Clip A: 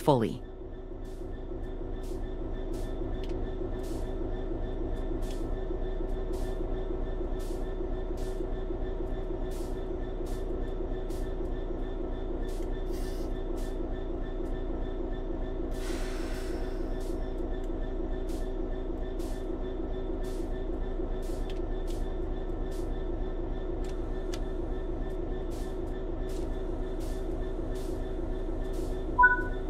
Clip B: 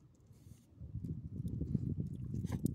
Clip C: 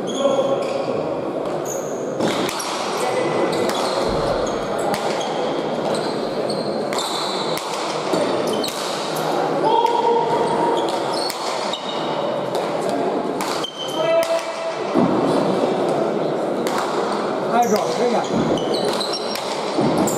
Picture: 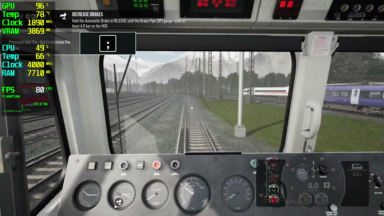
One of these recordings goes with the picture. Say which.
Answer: A